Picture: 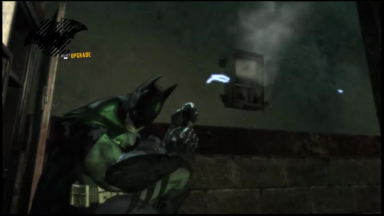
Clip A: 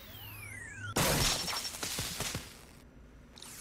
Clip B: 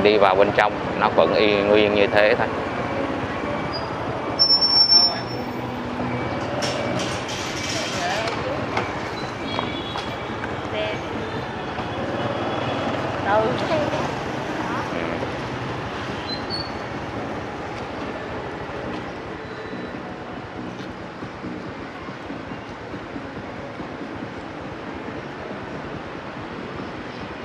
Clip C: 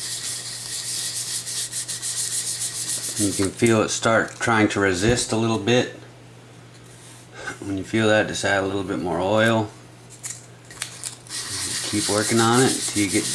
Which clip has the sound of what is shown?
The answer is A